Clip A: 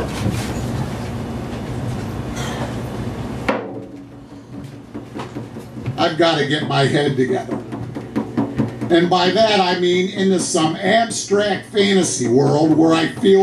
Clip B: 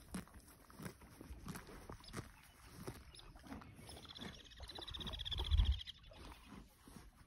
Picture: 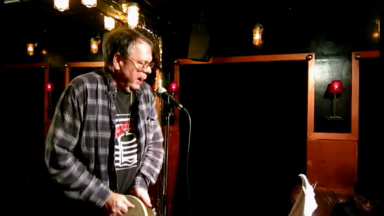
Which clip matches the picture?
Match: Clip A